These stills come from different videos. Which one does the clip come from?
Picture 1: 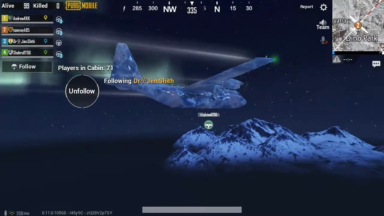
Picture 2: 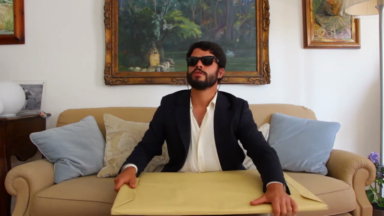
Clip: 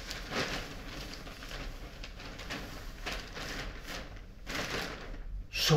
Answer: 2